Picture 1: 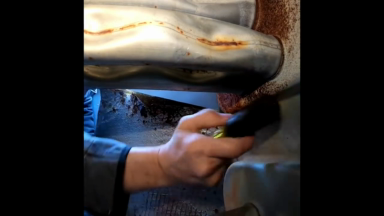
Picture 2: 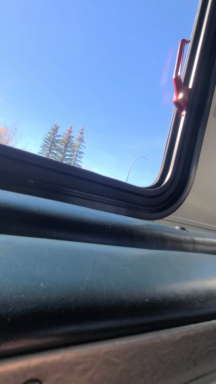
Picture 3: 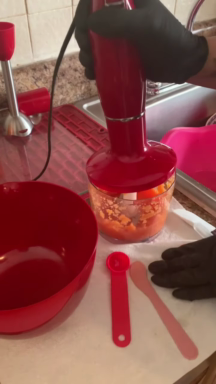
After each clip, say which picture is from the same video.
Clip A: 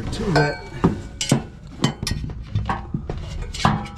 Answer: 1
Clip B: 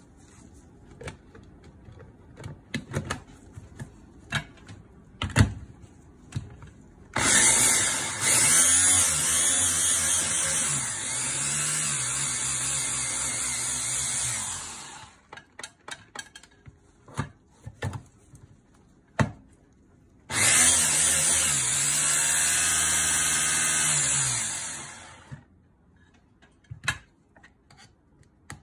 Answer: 3